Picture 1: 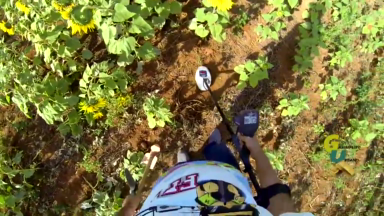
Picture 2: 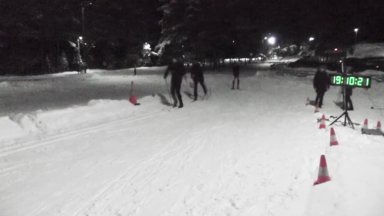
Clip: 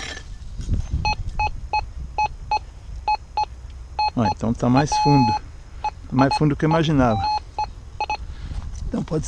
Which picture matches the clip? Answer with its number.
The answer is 1